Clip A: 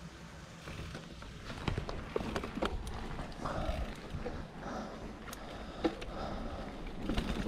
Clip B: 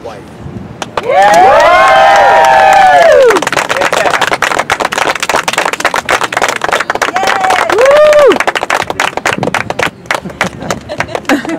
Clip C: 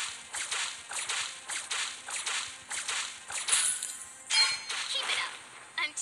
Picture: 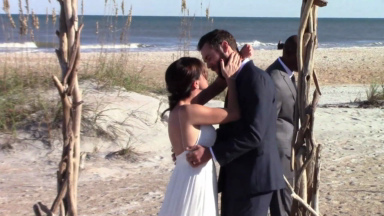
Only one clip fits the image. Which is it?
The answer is B